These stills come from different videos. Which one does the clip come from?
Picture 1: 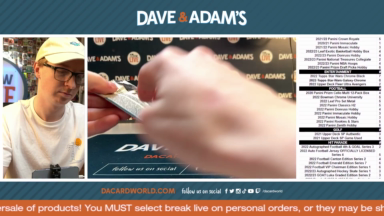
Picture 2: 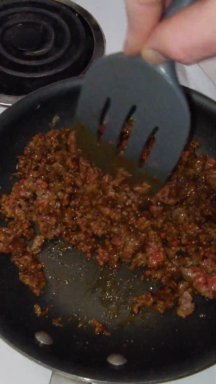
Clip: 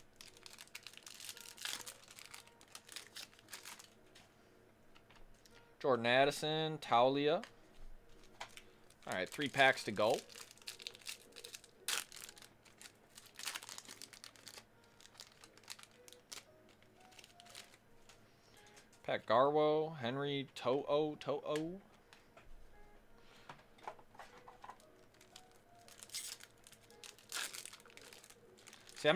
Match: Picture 1